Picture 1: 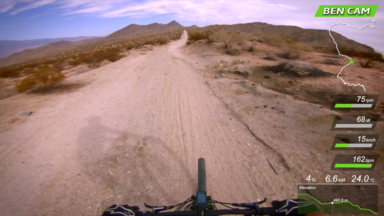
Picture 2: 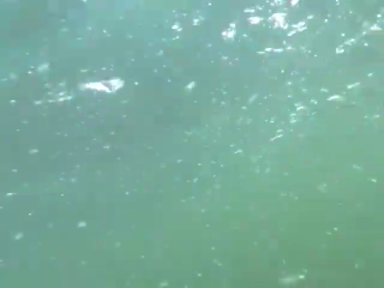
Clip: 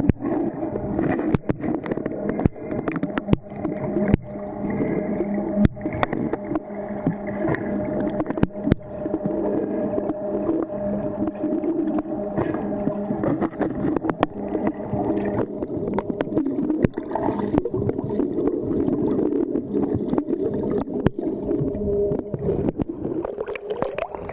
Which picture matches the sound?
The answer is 2